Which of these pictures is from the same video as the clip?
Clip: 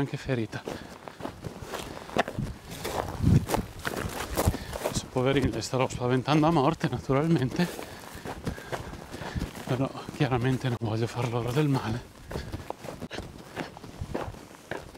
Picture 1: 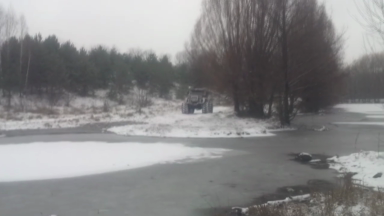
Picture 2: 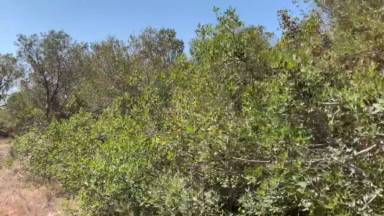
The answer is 2